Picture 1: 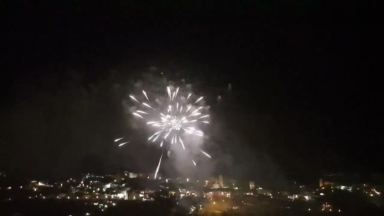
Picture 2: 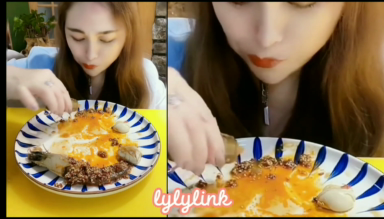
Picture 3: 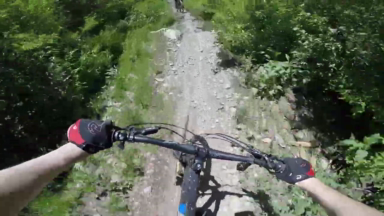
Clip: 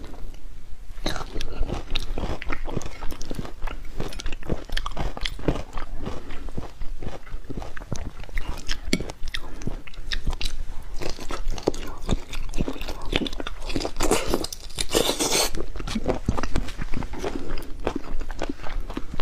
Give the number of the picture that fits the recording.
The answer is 2